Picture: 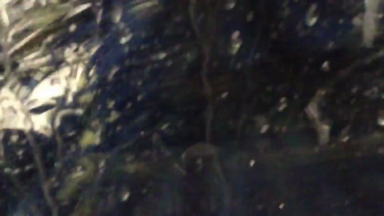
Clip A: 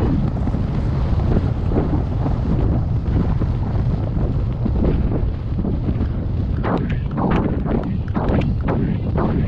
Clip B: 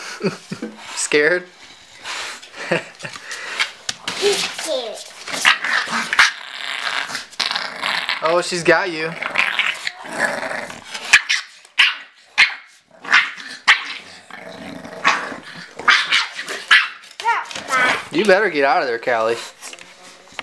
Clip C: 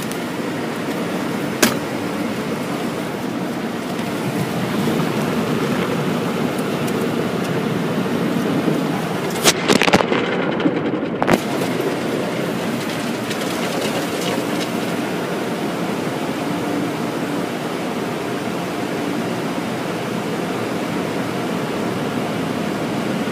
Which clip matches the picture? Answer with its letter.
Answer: C